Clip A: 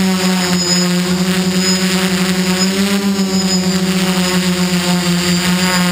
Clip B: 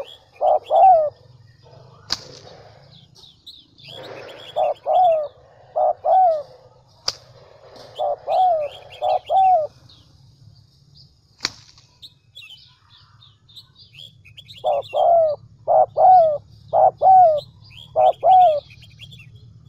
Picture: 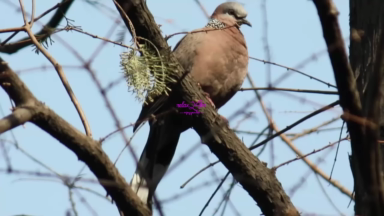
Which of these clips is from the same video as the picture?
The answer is B